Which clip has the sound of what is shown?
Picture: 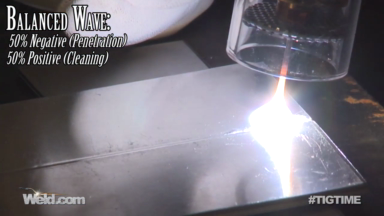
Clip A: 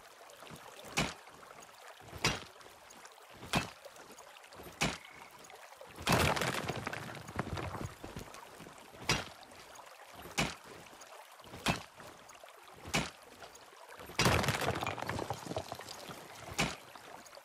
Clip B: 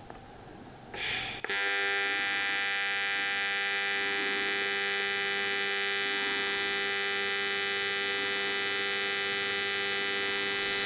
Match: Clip B